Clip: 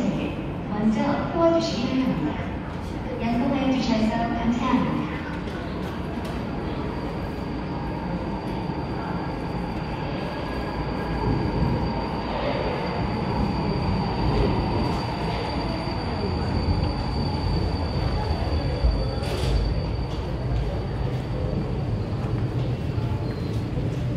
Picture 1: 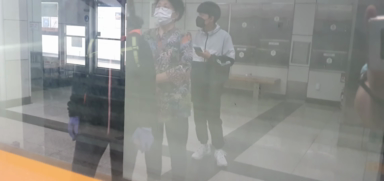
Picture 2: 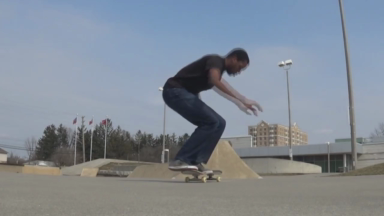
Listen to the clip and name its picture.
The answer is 1